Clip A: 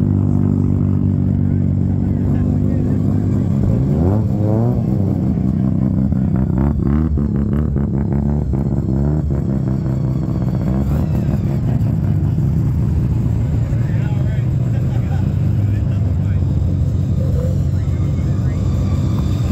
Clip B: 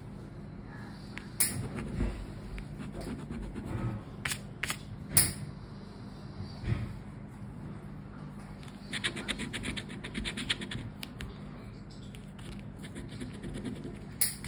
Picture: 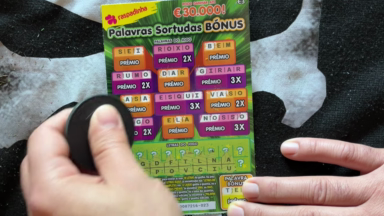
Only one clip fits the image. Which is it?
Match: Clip B